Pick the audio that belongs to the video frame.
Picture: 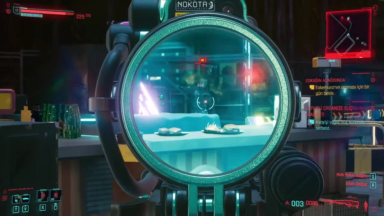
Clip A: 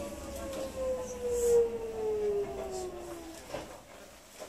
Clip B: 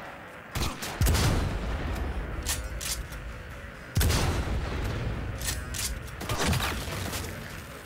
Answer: B